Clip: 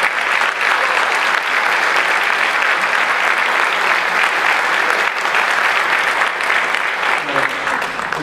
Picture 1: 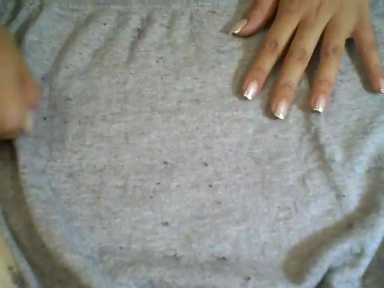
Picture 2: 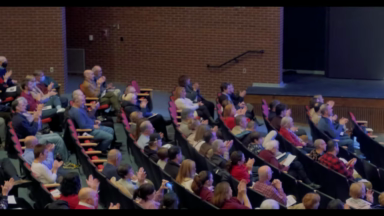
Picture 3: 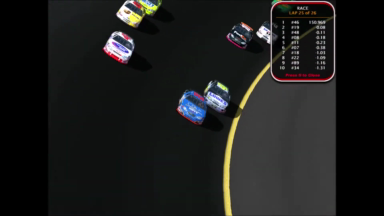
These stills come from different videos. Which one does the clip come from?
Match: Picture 2